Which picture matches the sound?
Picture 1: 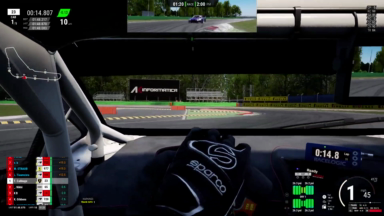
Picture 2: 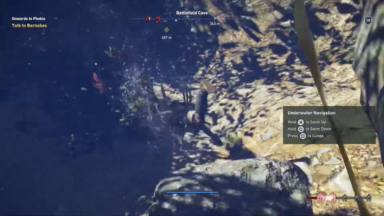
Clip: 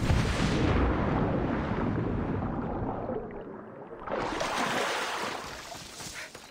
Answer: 2